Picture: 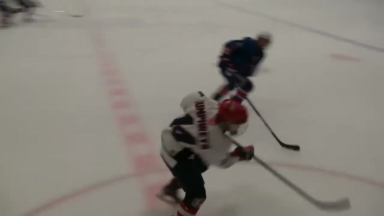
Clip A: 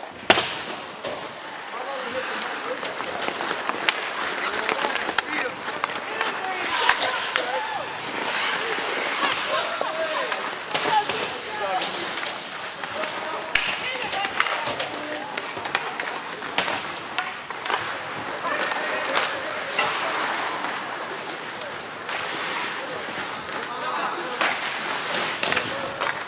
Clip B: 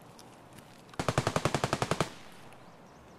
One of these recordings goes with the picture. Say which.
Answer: A